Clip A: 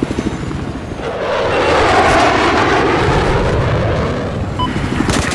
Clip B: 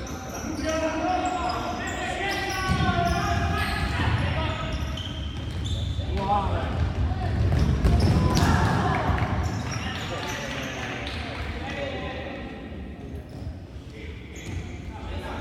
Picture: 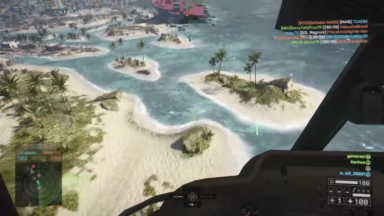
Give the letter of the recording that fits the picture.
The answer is A